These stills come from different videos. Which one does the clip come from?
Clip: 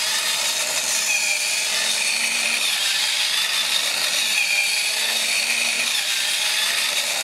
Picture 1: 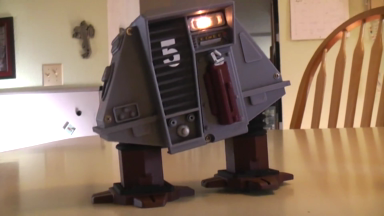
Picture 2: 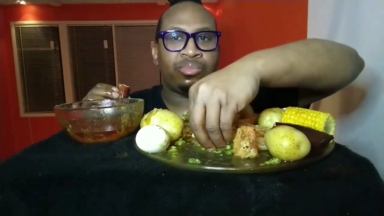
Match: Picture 1